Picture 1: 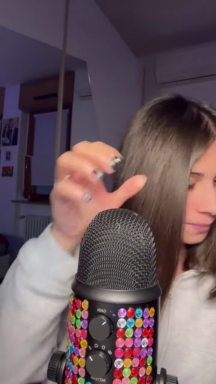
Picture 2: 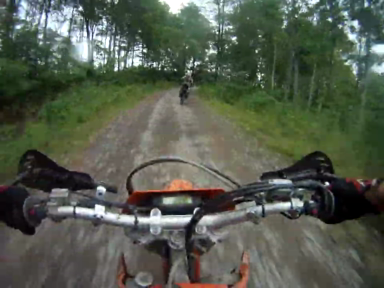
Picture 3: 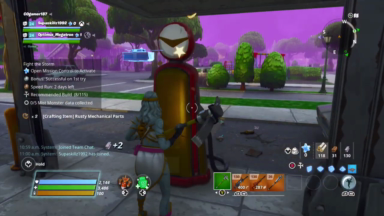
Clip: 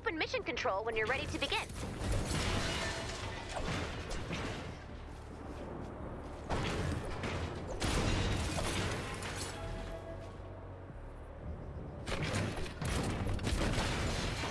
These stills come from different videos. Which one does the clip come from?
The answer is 3